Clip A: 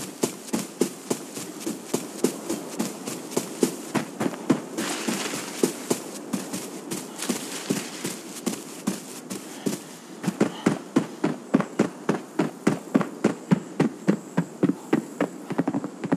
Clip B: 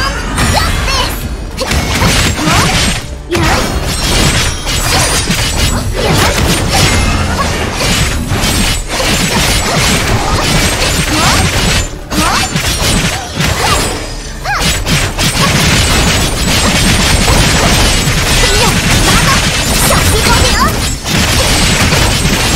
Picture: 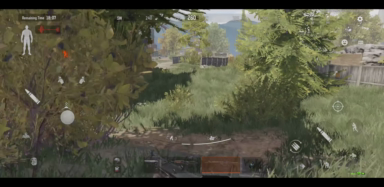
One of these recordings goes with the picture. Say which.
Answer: A